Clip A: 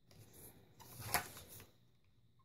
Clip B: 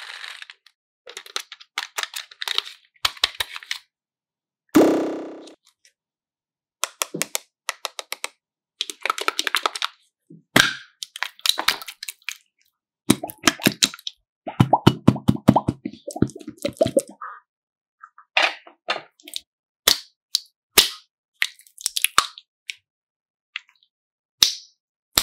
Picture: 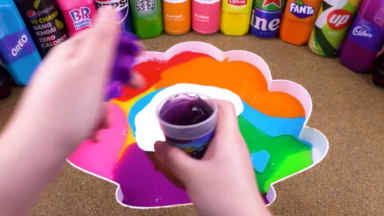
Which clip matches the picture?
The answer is B